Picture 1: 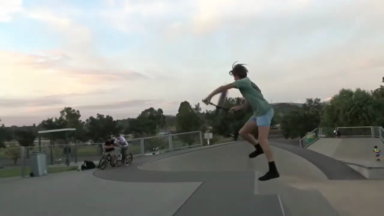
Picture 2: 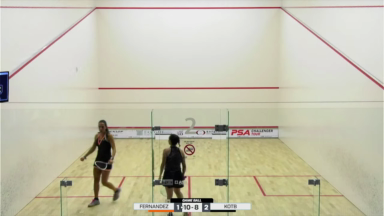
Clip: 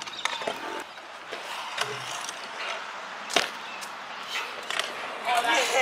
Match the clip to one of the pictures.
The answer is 1